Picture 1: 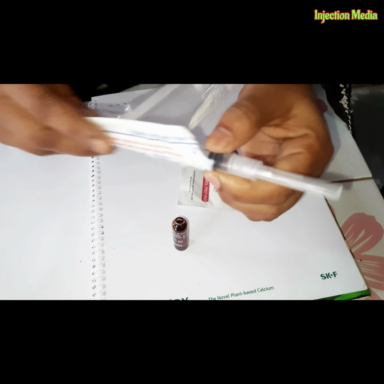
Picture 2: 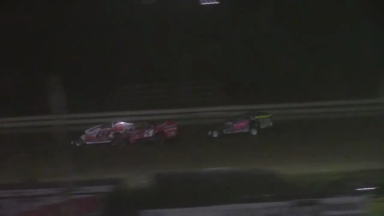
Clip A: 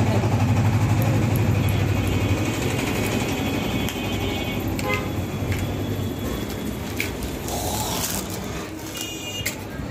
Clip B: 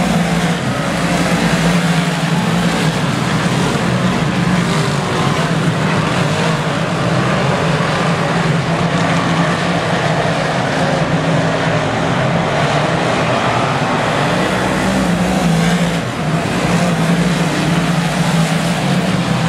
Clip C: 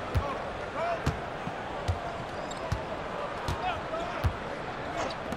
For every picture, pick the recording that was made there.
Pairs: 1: A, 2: B